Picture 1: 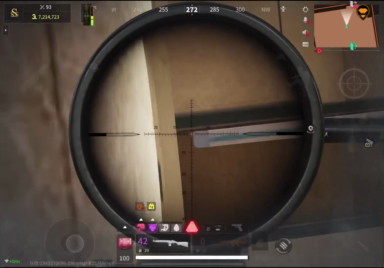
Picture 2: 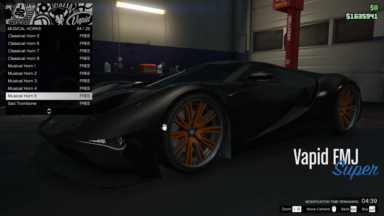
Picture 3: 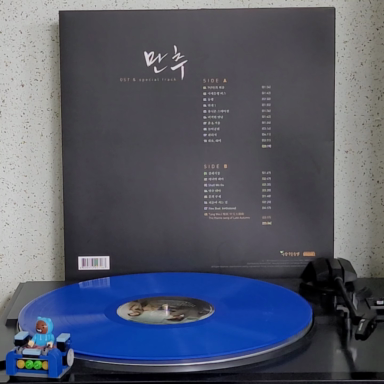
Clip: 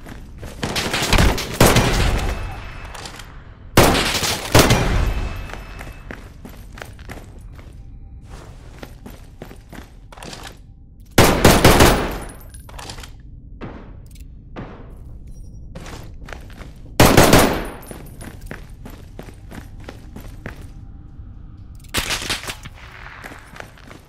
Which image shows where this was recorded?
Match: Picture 1